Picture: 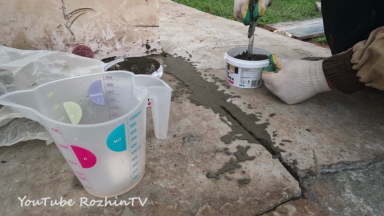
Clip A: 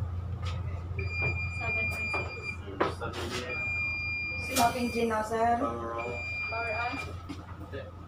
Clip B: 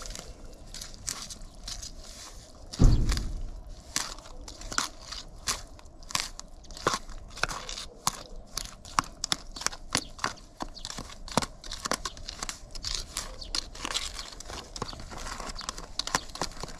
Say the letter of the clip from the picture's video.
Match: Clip B